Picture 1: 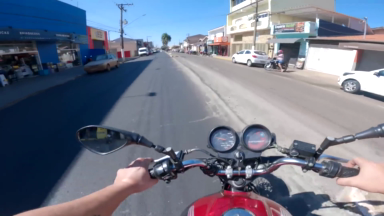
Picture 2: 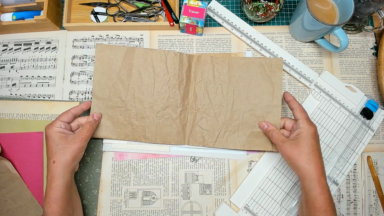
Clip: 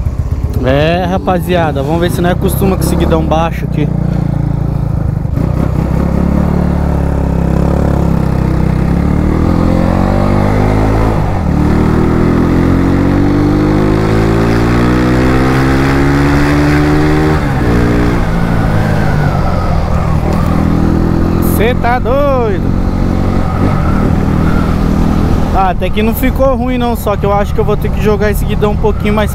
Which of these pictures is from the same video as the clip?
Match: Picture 1